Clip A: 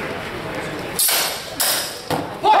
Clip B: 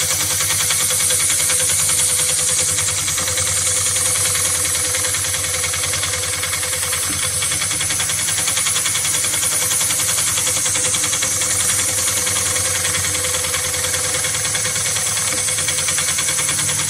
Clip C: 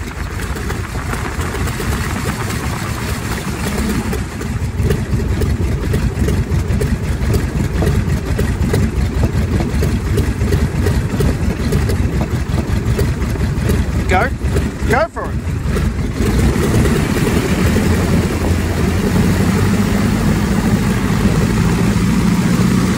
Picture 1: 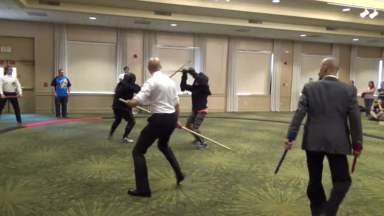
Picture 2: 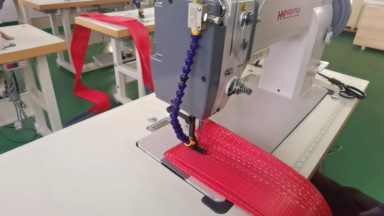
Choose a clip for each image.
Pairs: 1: A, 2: B